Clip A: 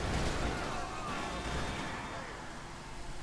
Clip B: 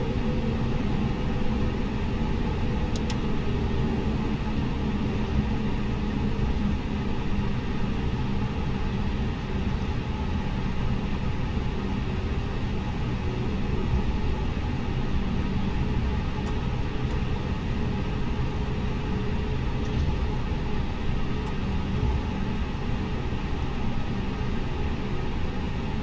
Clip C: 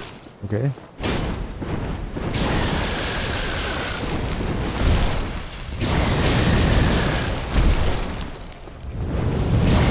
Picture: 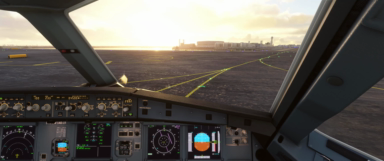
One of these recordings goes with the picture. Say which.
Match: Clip B